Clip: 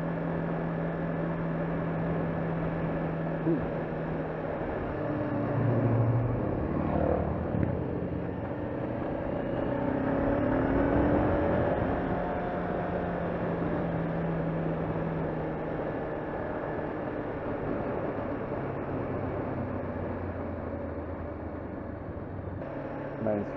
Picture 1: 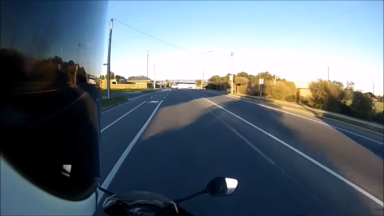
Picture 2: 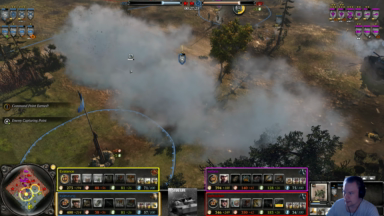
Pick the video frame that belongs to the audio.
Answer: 1